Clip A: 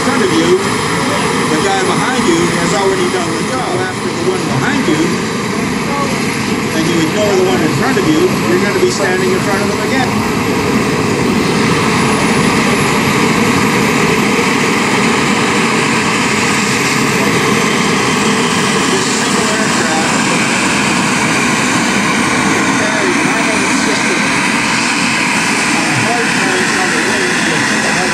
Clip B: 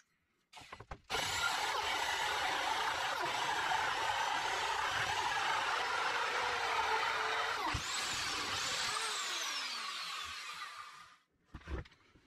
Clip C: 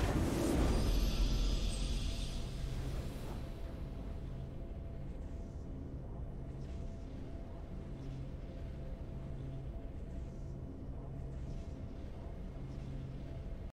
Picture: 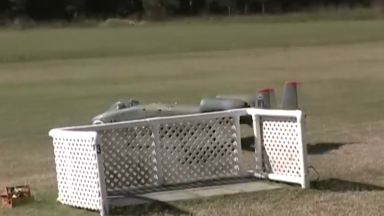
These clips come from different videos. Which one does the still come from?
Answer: A